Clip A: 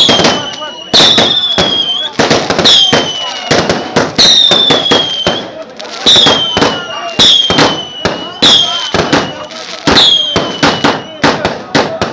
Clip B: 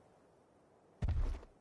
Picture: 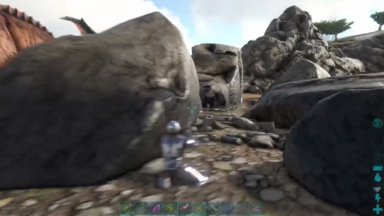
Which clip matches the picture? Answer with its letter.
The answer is B